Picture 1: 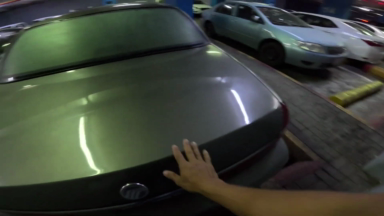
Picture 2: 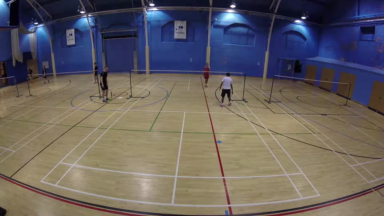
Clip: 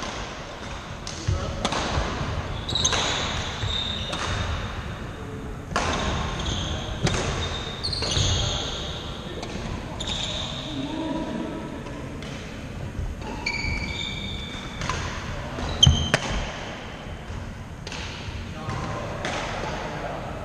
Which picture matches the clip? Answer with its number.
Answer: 2